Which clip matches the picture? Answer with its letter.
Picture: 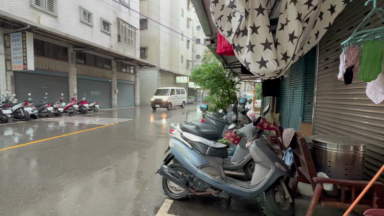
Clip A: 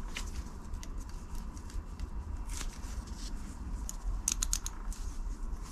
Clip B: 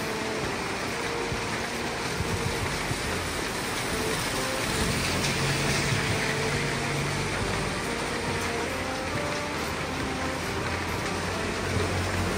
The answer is B